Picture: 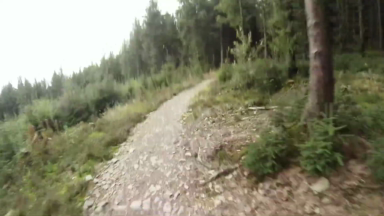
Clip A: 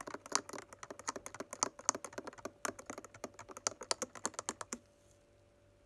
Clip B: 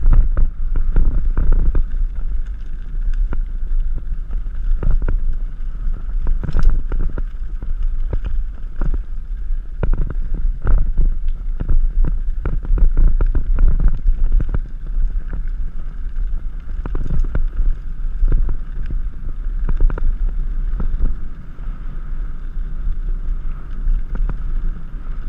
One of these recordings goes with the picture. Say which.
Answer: B